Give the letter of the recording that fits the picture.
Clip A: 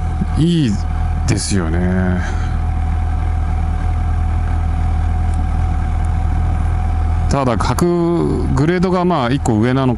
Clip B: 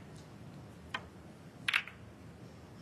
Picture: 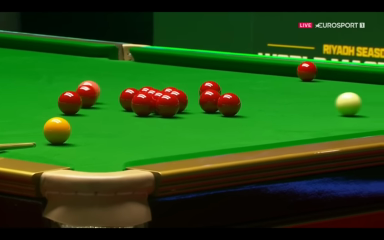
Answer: B